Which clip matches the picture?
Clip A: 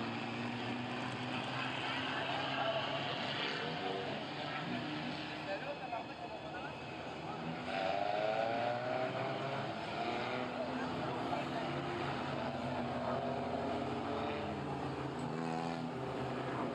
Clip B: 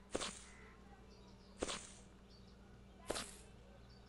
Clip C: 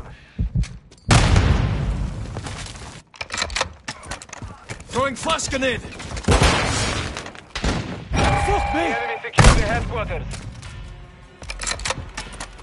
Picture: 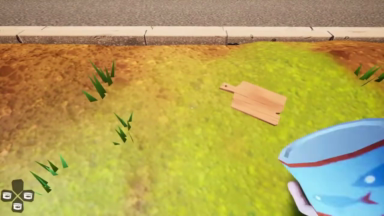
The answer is B